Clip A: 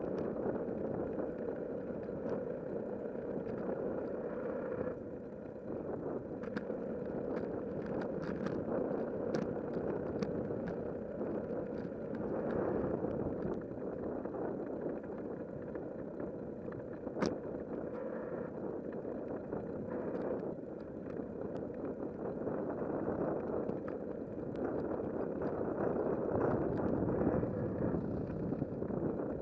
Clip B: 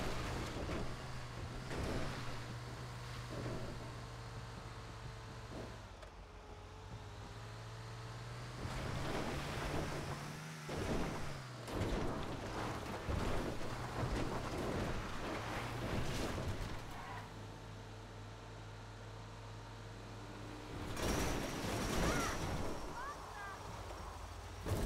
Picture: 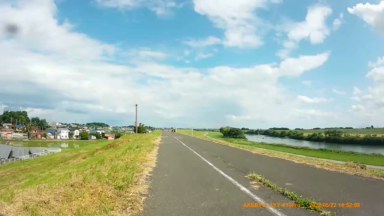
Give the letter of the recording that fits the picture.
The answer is A